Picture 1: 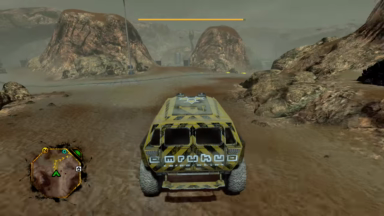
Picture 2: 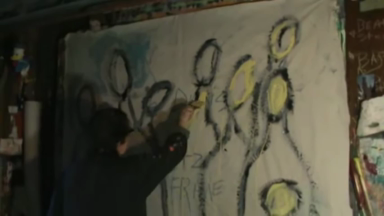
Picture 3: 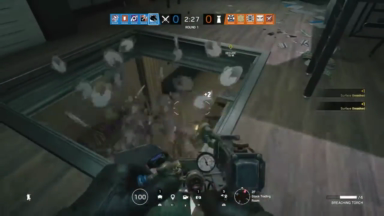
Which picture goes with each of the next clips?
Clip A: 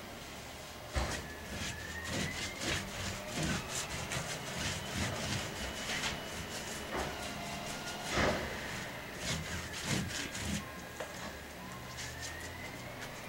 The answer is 2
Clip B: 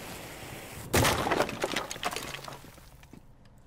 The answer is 3